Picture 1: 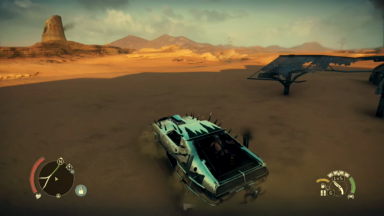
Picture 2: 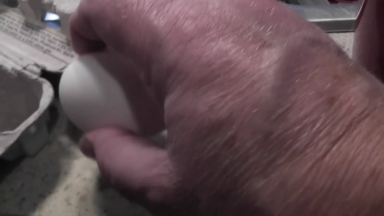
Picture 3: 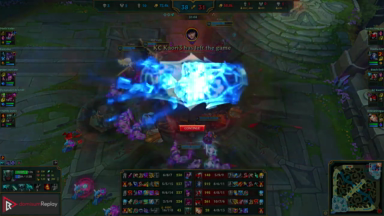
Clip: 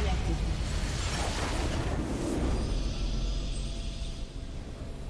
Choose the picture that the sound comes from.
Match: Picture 3